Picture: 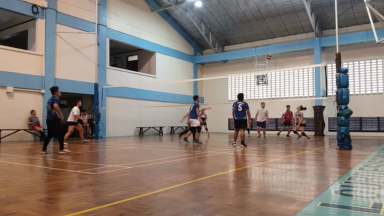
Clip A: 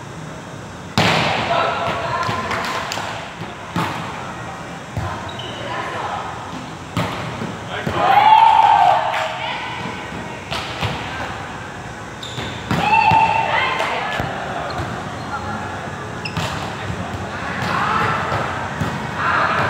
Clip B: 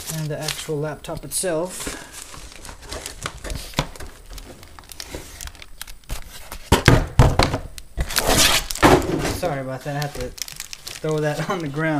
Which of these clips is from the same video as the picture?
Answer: A